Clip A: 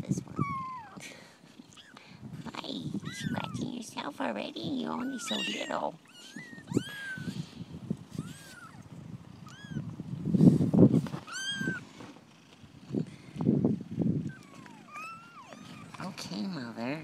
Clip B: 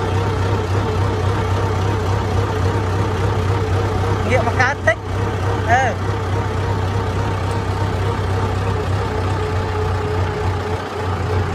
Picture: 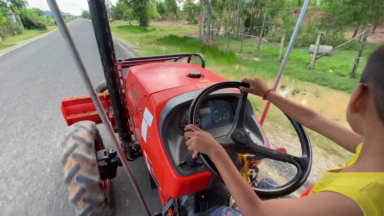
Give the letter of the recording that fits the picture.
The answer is B